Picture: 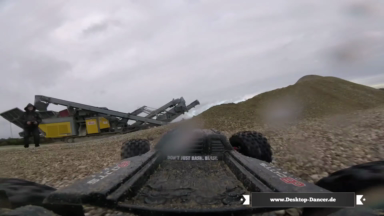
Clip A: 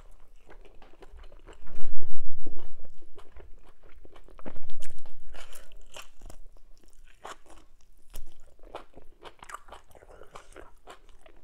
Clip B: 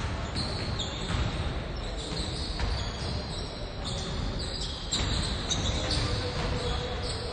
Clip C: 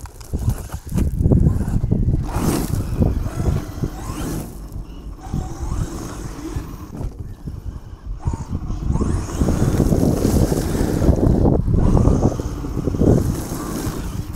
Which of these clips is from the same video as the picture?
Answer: C